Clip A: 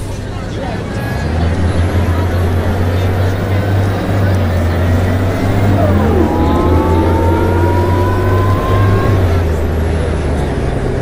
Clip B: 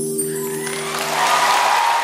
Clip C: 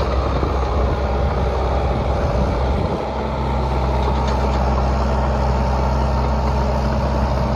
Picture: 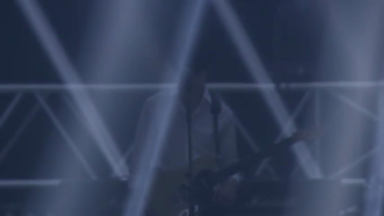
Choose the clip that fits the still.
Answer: B